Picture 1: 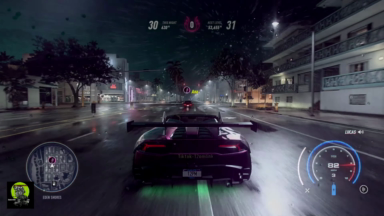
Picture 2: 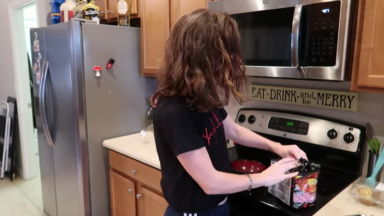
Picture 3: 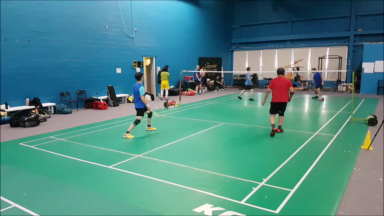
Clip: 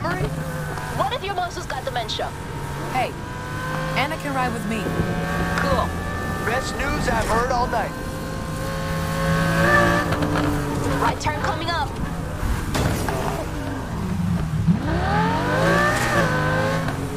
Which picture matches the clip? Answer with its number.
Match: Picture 1